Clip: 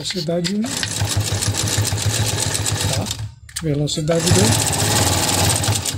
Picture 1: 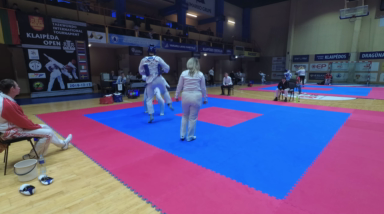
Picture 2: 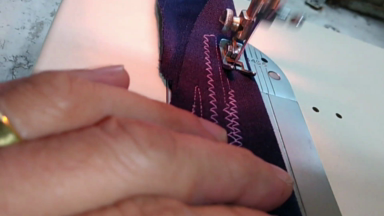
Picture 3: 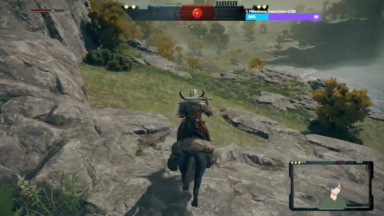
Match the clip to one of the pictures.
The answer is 2